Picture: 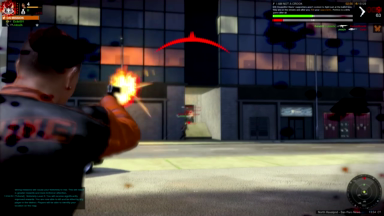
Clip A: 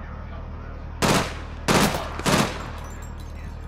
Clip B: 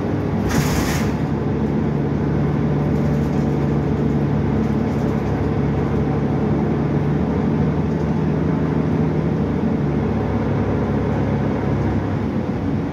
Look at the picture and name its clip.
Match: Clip A